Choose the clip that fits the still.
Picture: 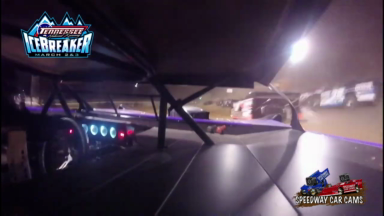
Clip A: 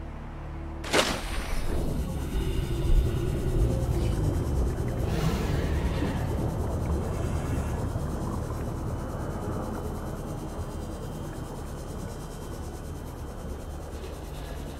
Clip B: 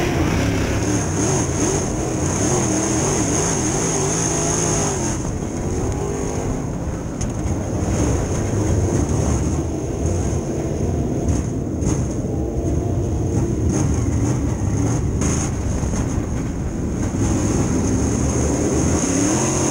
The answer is B